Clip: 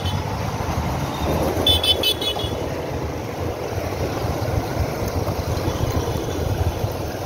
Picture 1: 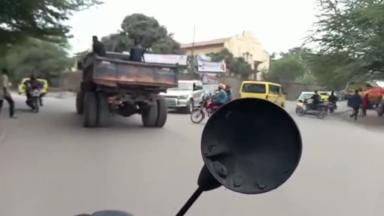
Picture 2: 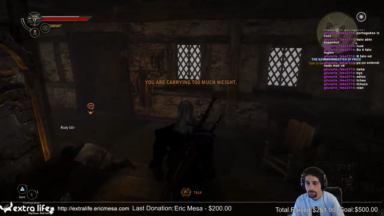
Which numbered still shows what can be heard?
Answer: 1